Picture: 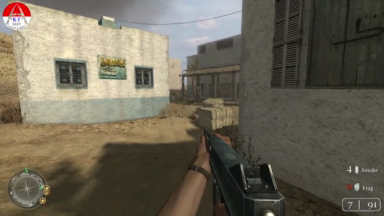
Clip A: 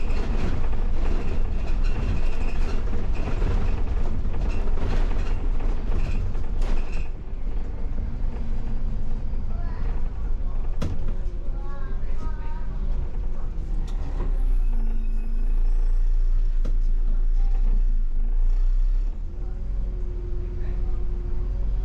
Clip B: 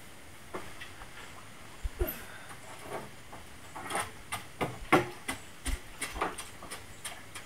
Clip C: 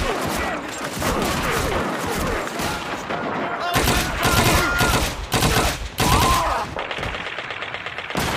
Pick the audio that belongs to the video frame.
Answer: C